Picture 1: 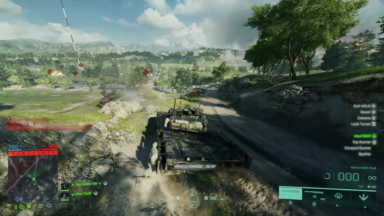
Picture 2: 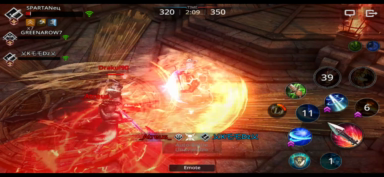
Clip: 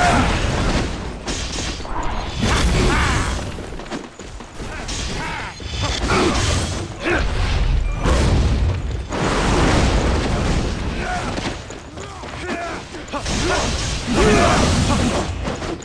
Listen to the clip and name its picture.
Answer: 2